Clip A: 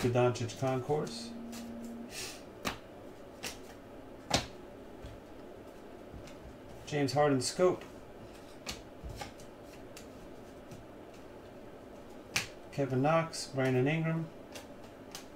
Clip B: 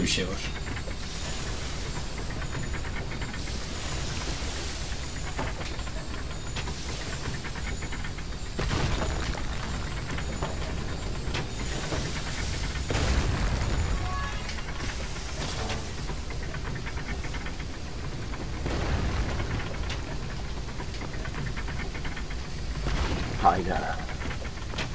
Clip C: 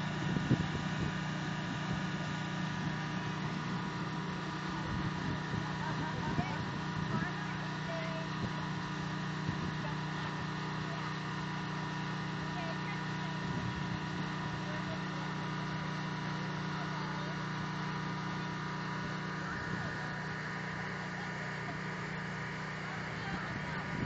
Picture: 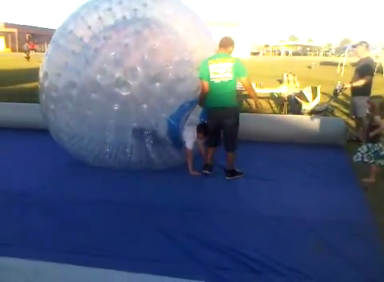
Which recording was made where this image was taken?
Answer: C